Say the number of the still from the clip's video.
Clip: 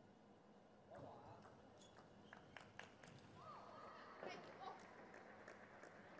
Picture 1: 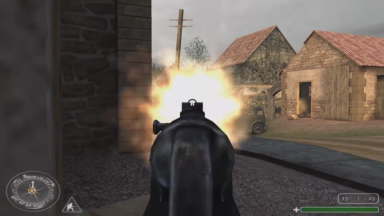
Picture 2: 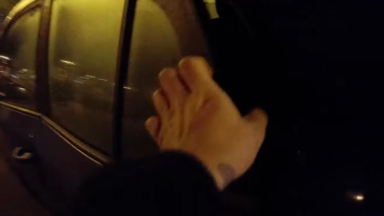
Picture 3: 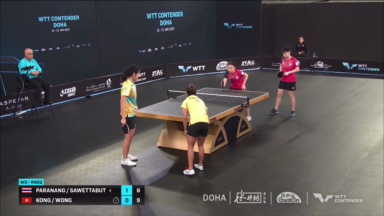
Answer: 3